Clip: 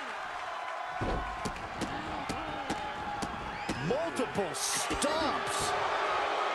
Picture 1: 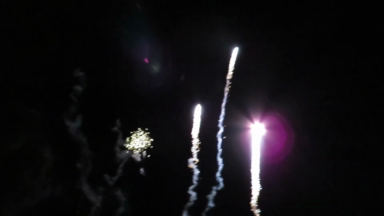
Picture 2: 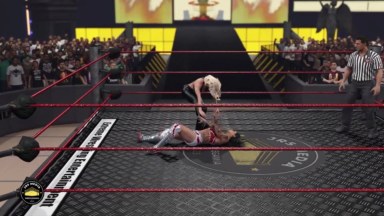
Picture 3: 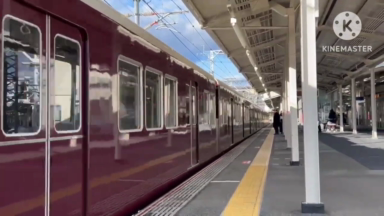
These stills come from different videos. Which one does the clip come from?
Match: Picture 2